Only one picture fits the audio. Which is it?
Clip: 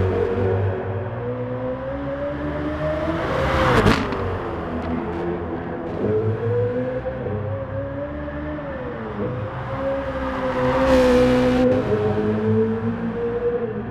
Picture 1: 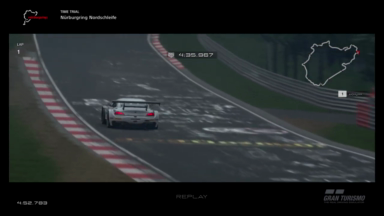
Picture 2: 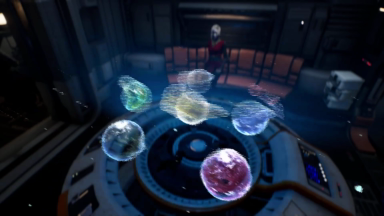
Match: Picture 1